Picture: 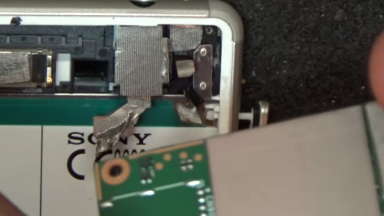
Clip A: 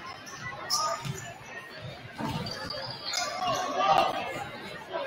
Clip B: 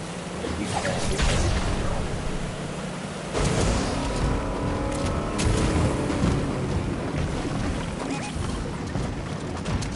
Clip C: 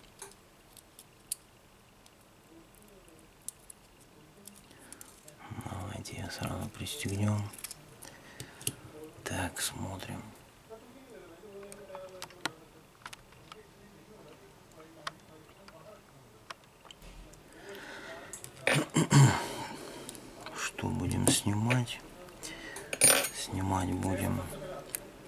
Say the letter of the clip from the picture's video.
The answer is C